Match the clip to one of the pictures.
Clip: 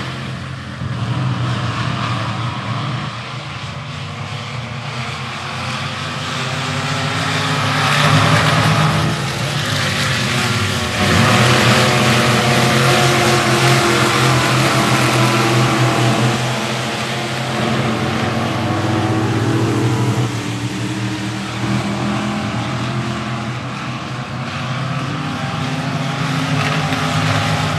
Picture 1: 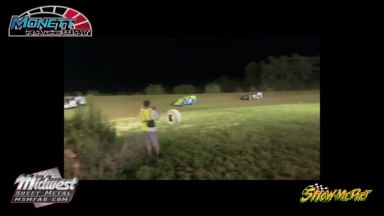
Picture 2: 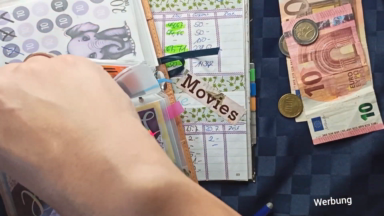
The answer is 1